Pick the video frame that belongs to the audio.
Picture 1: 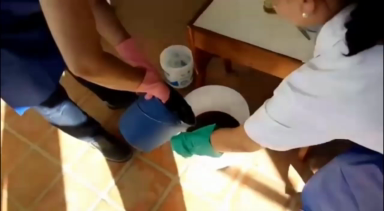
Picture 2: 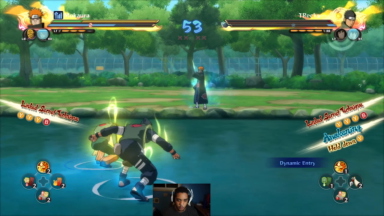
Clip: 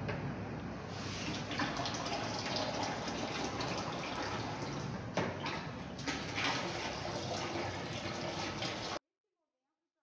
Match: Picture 1